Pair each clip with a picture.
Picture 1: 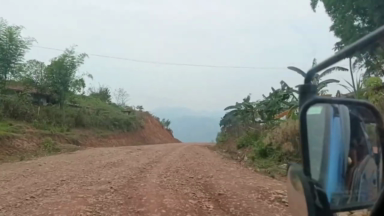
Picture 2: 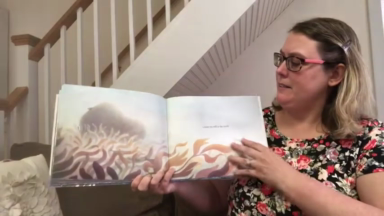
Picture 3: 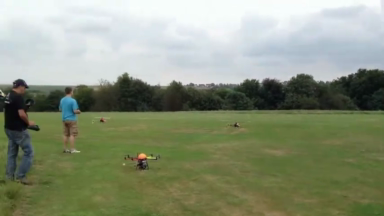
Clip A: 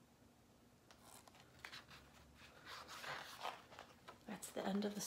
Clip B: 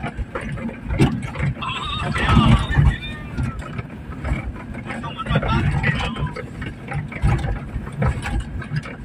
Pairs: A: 2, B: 1